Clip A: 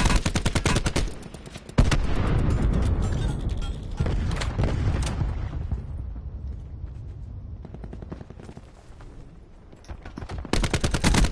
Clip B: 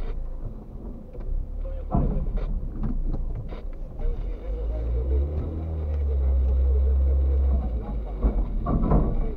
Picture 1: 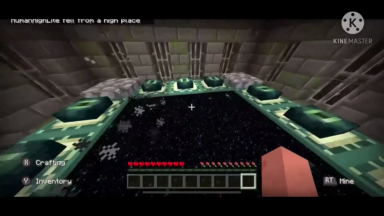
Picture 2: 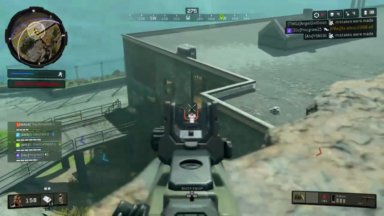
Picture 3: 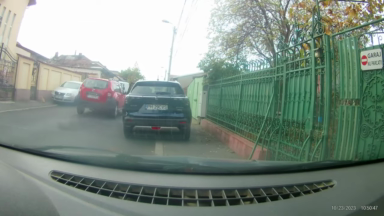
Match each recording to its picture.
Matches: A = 2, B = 3